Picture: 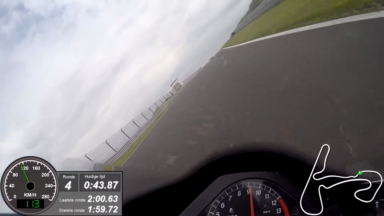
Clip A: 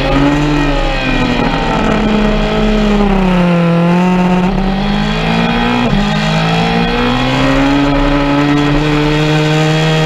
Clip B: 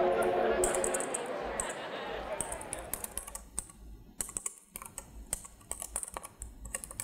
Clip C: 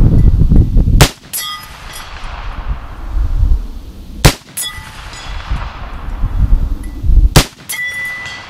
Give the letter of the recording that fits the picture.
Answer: A